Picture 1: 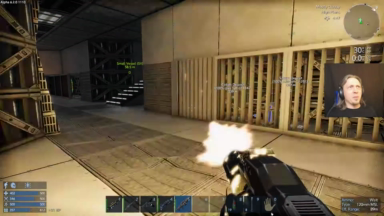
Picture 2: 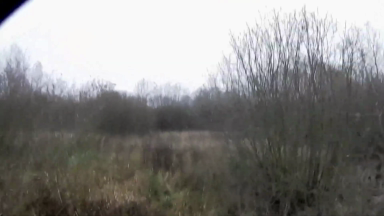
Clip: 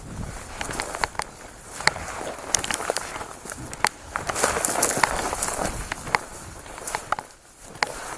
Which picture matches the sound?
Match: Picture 2